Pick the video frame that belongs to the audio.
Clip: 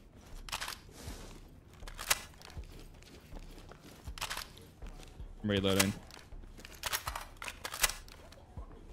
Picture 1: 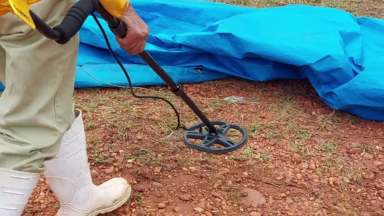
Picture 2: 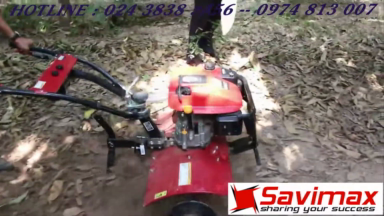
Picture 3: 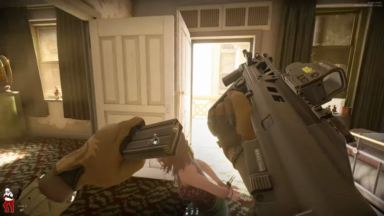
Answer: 3